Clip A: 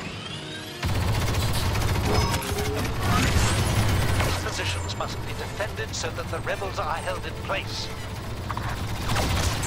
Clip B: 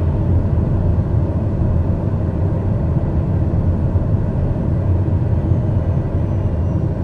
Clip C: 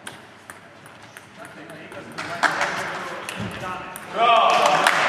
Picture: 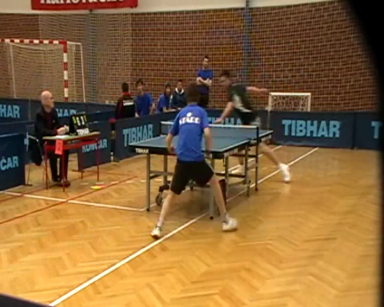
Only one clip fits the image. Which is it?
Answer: C